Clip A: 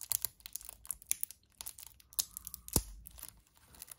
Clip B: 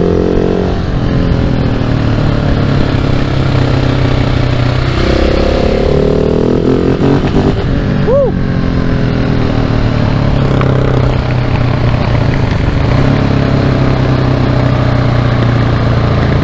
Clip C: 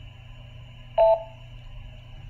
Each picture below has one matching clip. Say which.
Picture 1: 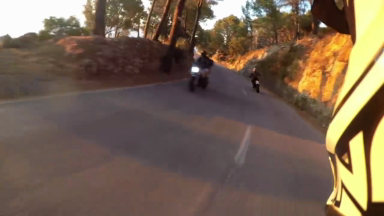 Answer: B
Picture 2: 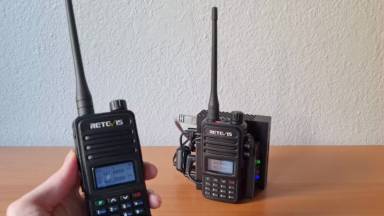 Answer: C